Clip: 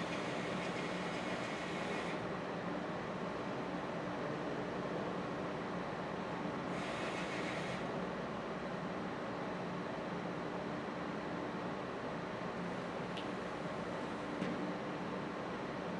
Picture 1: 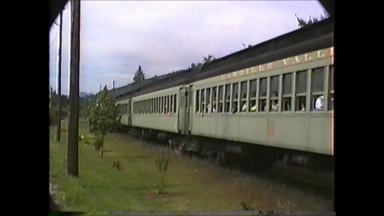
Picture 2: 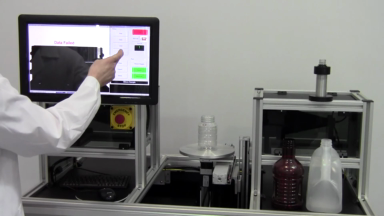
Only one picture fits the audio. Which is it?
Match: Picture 2